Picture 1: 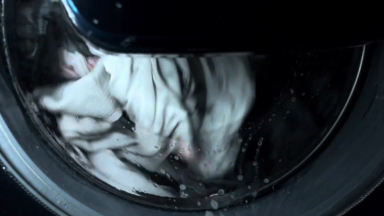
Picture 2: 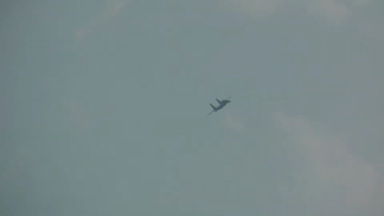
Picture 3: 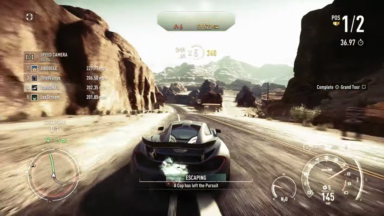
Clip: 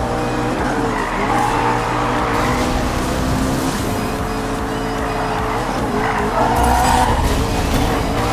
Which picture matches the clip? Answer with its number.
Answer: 3